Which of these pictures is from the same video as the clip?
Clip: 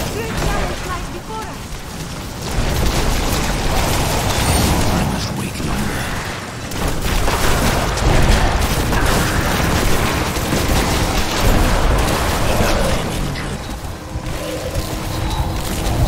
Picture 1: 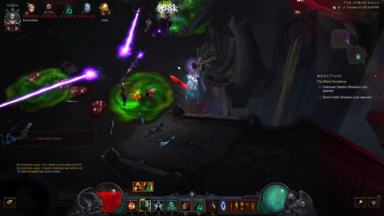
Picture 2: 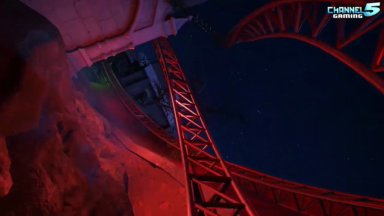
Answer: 1